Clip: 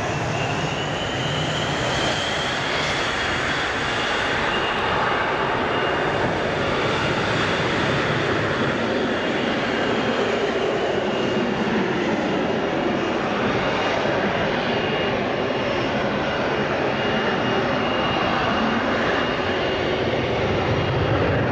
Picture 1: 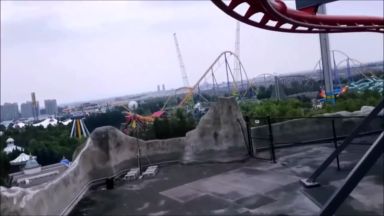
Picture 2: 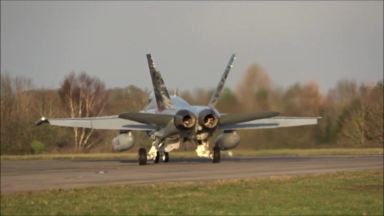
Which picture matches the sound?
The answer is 2